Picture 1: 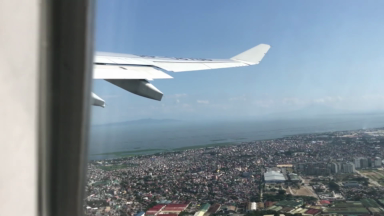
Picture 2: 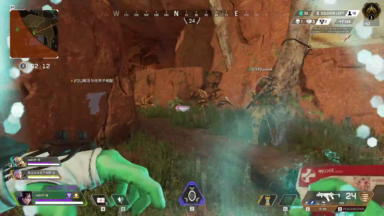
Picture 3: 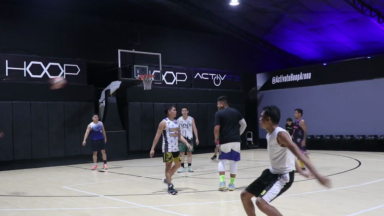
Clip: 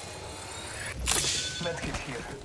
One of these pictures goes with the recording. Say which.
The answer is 2